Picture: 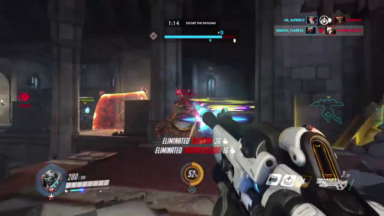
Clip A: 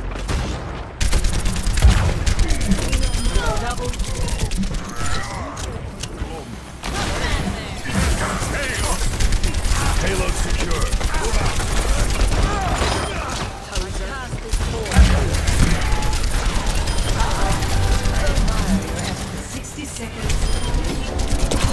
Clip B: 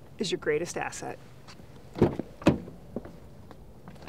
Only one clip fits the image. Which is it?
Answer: A